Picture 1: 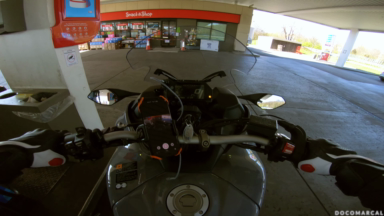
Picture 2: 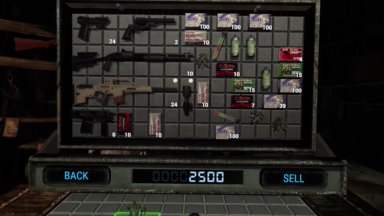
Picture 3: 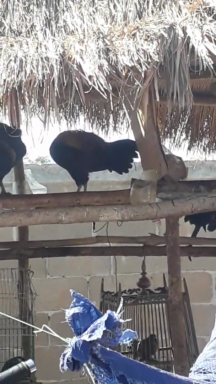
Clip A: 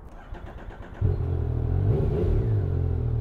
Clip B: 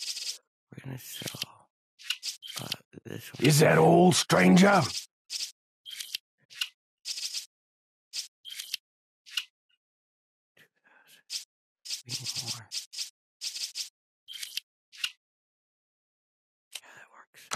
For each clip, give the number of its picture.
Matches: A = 1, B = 2